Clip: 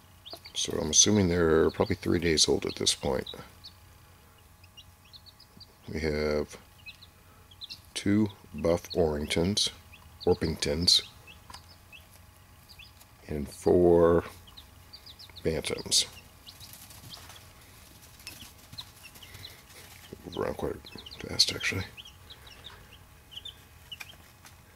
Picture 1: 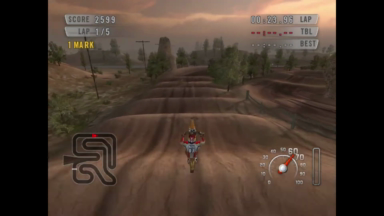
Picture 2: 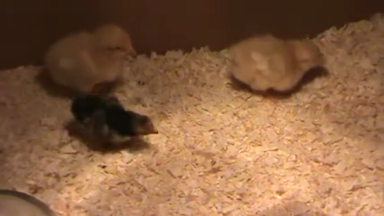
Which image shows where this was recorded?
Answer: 2